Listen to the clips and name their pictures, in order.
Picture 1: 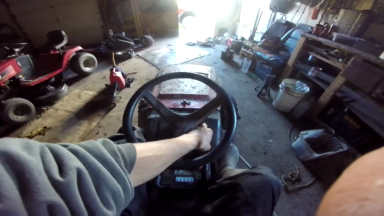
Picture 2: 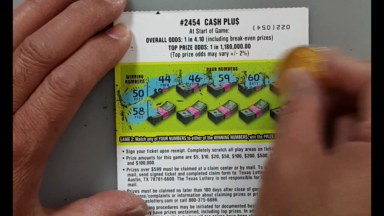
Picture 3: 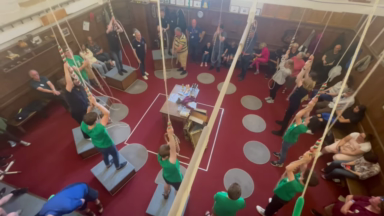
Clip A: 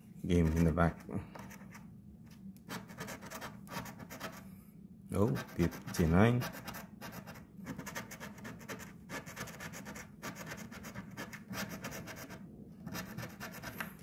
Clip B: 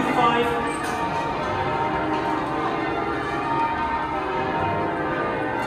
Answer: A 2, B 3